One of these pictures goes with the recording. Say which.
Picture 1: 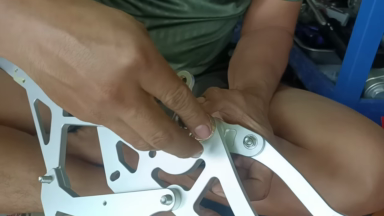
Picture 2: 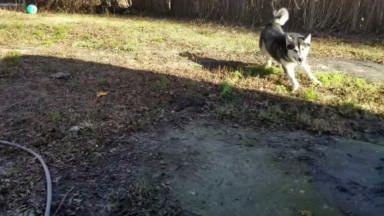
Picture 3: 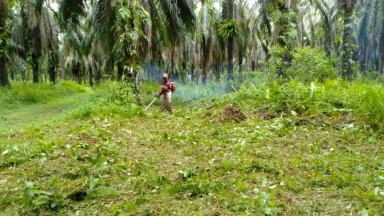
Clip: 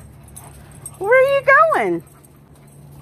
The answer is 2